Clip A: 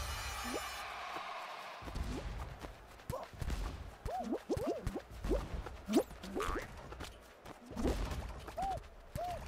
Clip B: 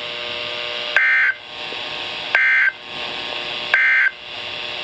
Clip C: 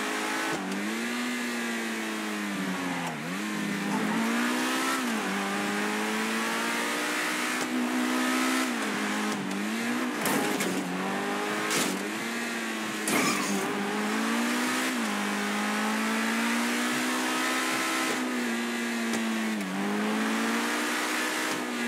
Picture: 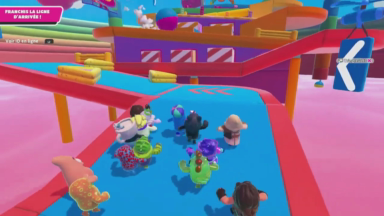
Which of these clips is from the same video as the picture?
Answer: A